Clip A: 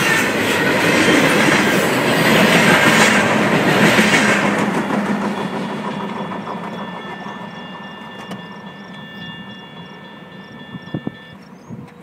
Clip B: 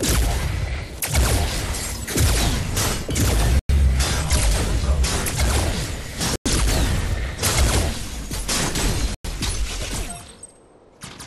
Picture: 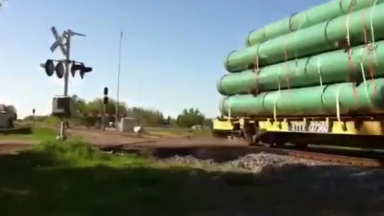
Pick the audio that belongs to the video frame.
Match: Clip A